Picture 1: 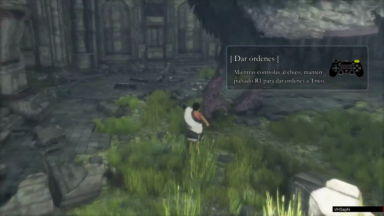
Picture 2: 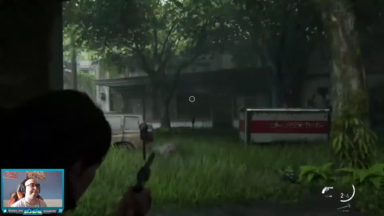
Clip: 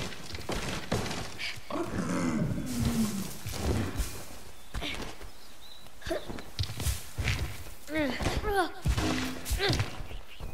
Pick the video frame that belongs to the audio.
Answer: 1